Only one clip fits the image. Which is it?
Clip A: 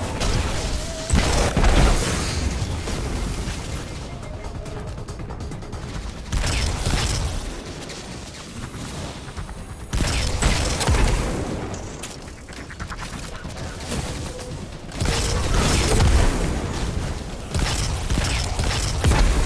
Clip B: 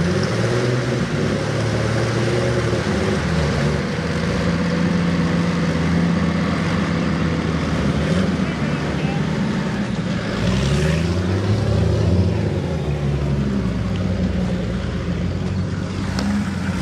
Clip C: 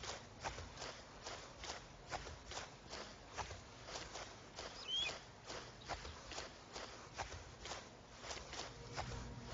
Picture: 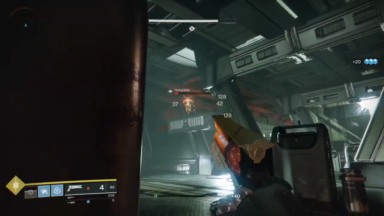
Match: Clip A